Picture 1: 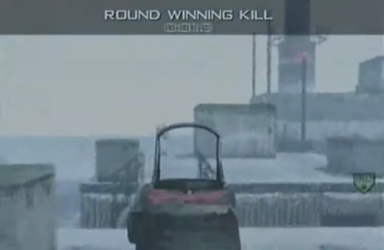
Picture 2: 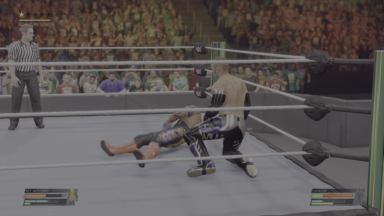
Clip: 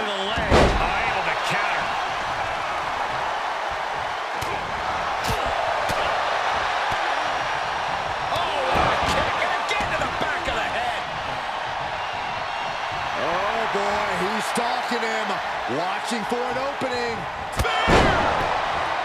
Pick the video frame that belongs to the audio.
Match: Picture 2